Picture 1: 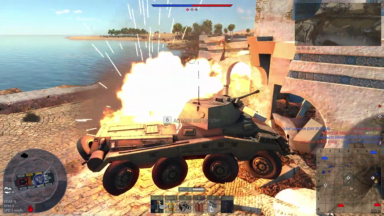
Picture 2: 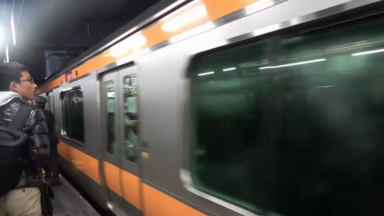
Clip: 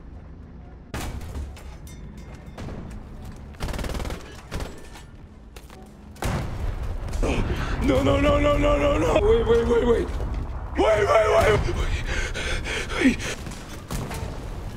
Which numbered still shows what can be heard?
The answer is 1